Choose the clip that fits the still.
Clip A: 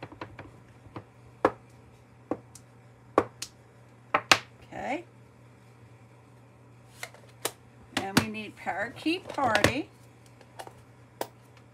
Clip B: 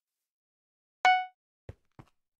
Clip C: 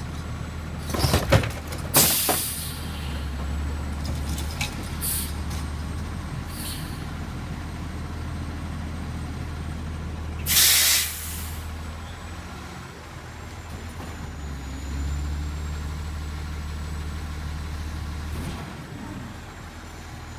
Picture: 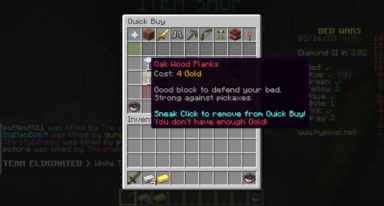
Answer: B